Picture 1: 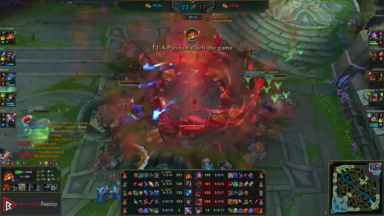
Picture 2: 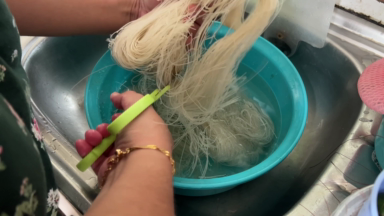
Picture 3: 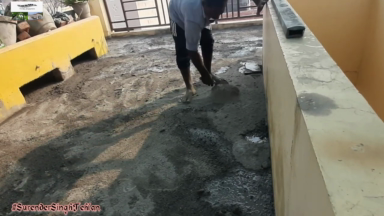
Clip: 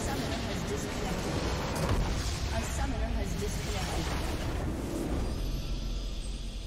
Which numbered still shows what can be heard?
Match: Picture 1